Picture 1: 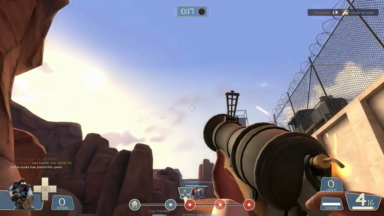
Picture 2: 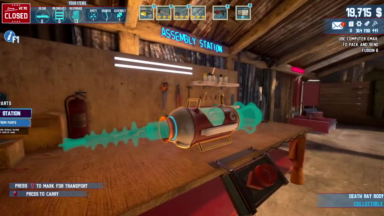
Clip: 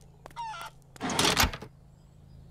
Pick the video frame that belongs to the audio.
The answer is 2